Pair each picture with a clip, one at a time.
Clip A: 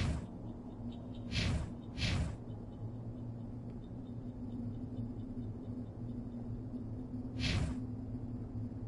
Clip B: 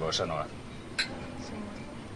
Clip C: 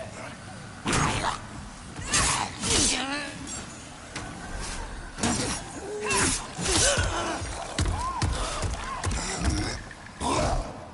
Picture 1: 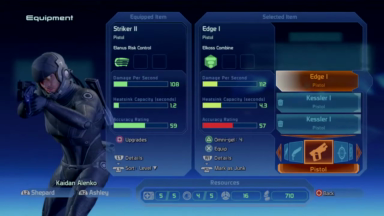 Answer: A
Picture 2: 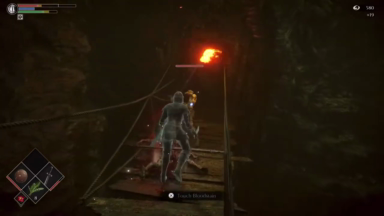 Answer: C